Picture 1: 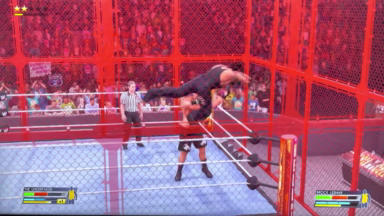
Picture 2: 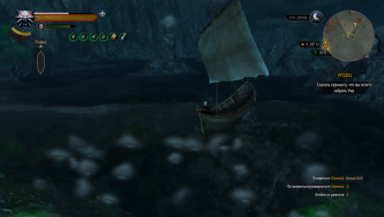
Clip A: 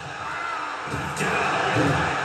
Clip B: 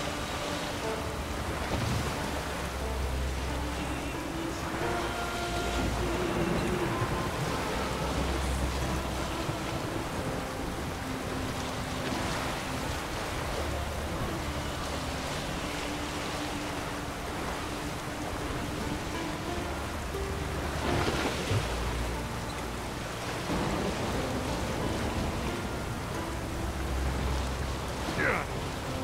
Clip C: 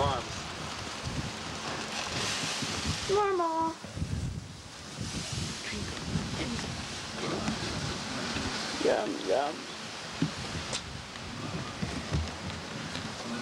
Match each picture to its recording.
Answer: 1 A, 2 B